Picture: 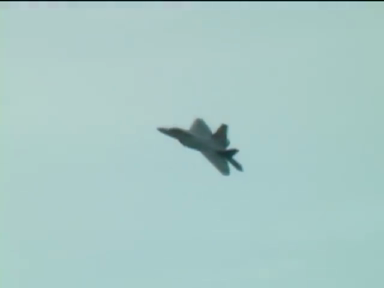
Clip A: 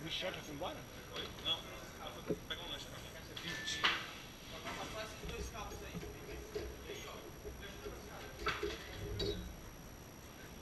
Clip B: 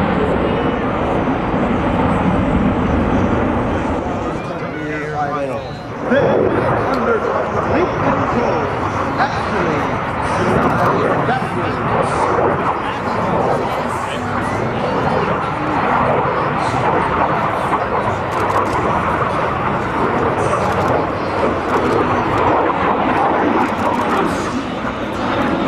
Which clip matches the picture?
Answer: B